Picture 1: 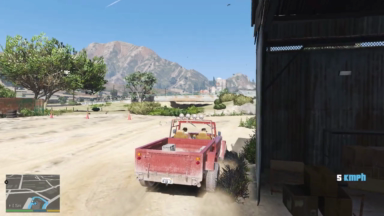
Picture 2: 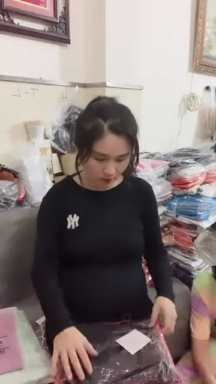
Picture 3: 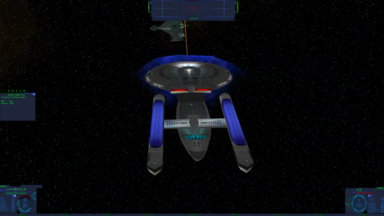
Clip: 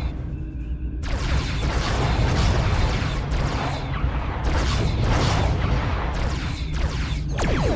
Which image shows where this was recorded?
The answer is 3